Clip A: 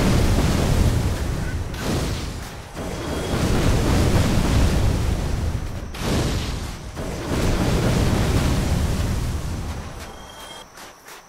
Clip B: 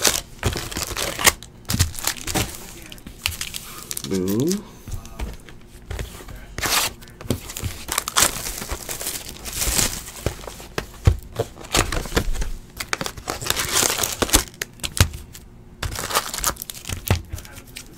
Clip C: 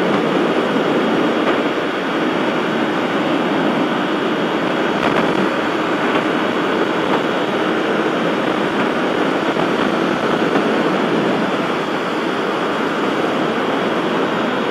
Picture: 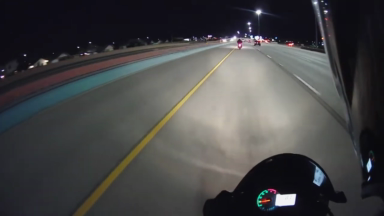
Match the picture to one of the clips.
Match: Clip C